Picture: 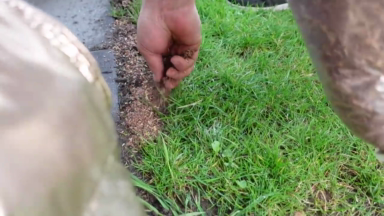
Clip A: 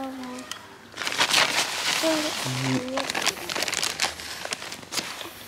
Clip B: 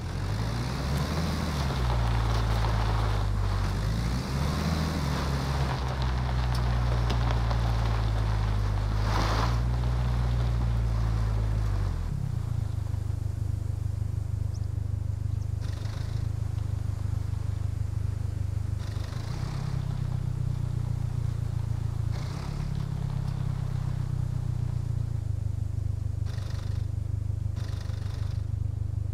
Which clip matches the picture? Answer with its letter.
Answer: A